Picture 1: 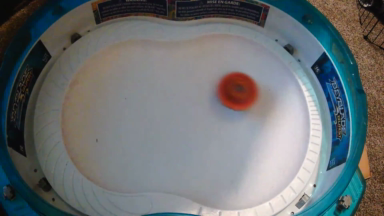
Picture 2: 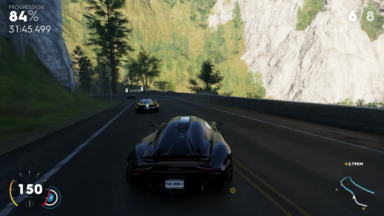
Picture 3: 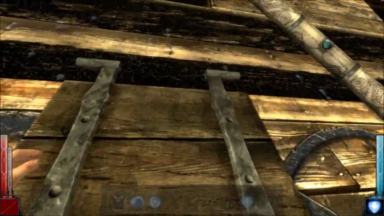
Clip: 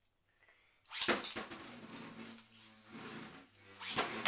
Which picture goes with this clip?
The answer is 1